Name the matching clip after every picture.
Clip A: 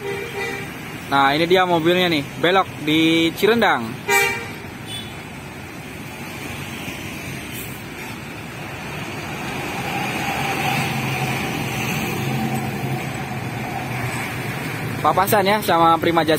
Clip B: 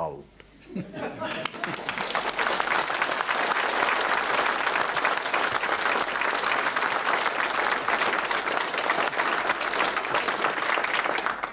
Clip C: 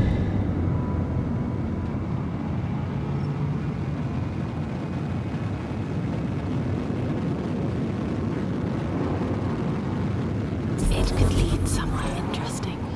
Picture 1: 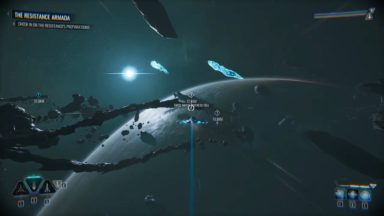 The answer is C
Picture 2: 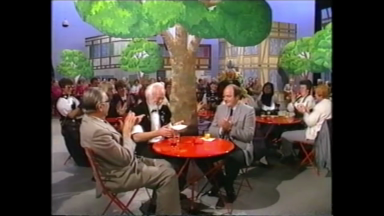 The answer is B